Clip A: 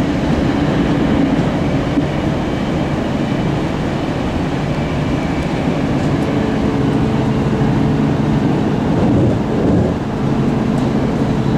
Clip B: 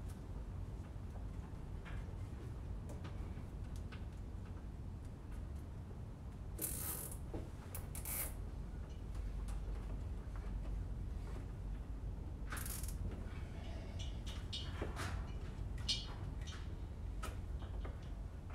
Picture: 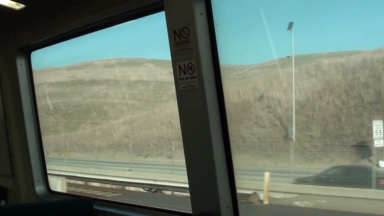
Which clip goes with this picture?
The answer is A